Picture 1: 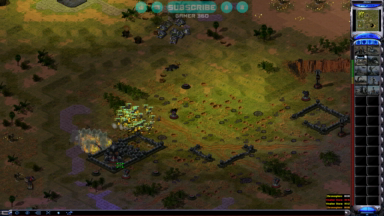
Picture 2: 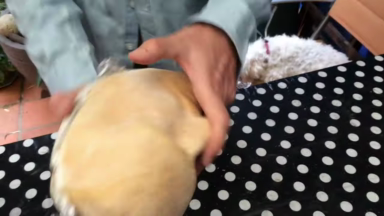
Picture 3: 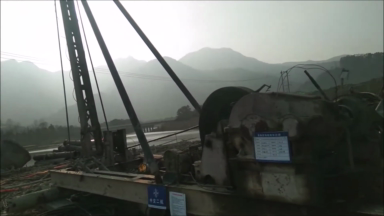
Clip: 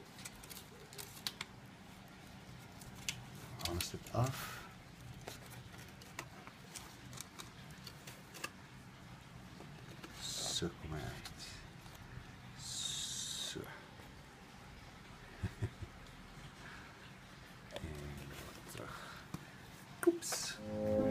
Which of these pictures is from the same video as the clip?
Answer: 2